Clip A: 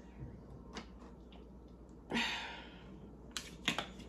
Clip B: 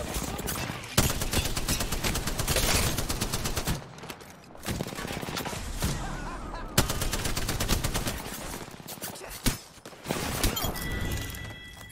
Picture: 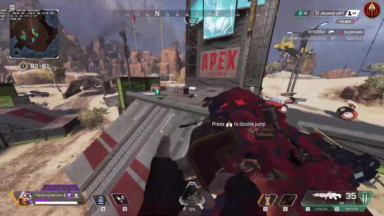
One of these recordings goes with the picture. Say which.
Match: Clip B